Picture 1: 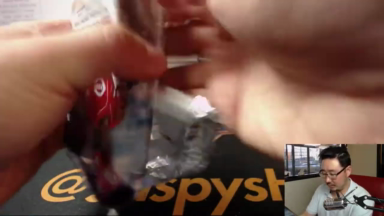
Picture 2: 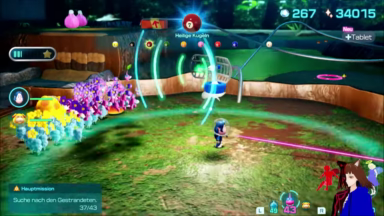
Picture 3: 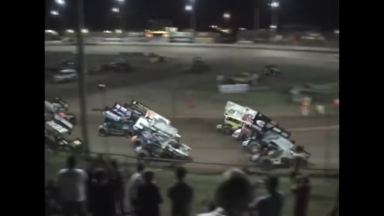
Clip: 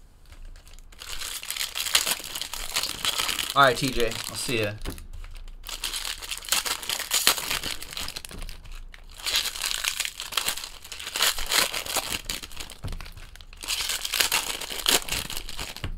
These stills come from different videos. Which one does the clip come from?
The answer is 1